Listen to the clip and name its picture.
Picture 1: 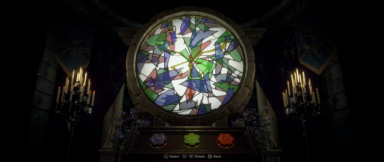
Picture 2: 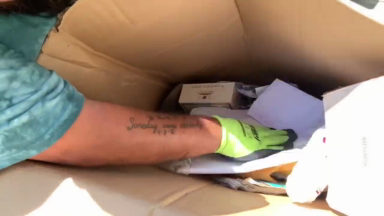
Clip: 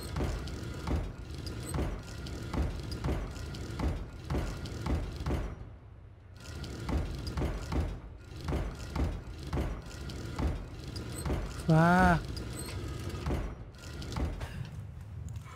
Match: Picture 1